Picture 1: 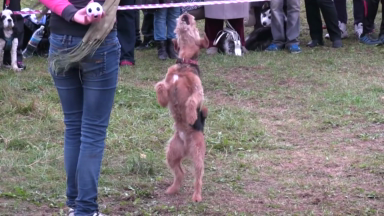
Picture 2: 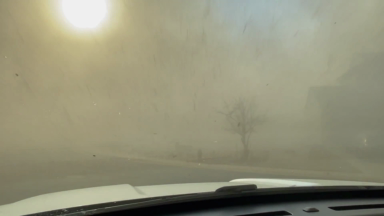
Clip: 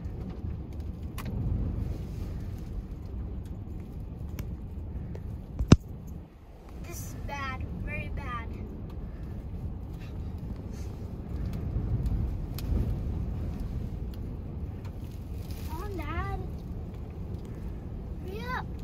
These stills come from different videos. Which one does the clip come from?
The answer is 2